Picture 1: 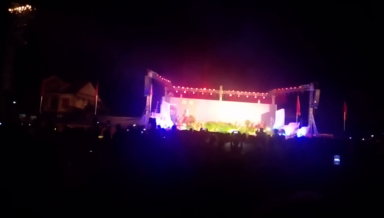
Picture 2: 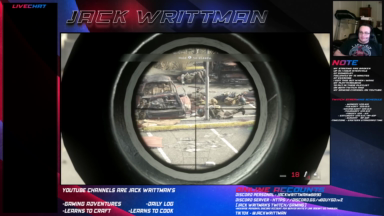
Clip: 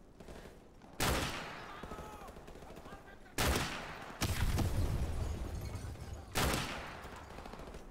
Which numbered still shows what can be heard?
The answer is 2